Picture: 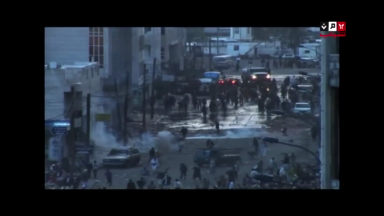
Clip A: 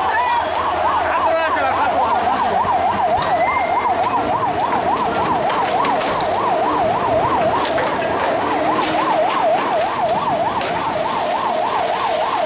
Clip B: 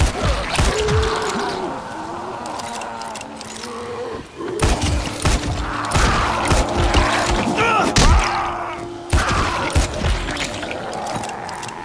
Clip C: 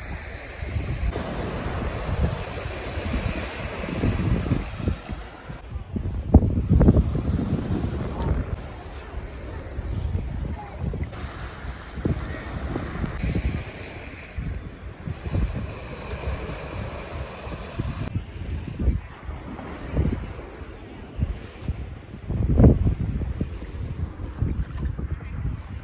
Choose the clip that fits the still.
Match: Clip A